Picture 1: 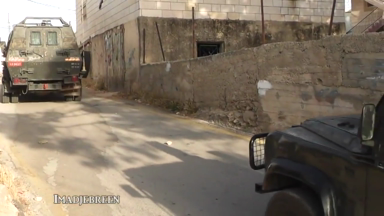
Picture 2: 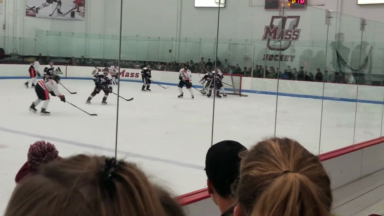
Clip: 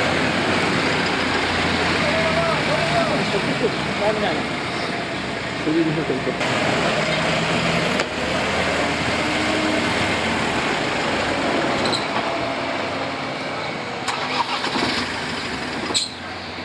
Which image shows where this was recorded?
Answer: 1